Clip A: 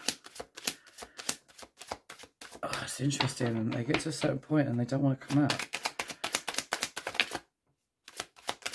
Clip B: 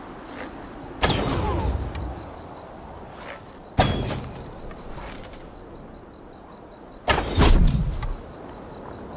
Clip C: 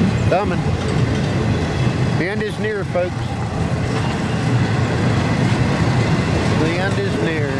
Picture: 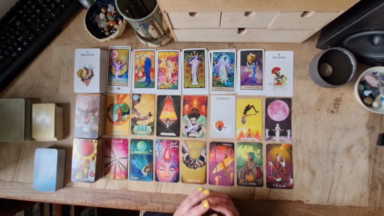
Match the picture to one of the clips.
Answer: A